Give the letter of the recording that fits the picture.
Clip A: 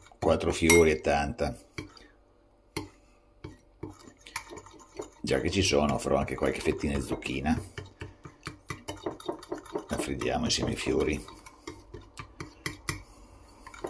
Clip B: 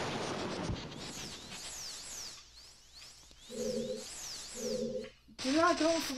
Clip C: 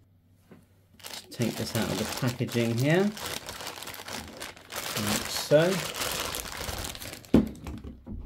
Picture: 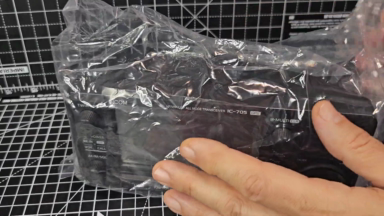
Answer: C